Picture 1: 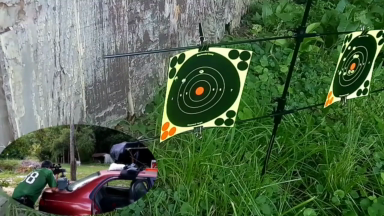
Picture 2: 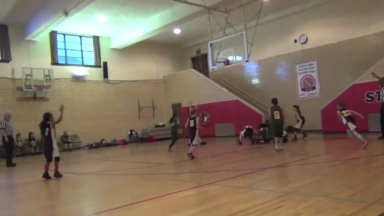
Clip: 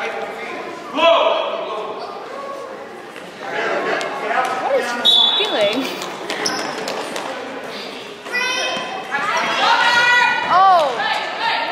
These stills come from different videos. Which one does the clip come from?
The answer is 2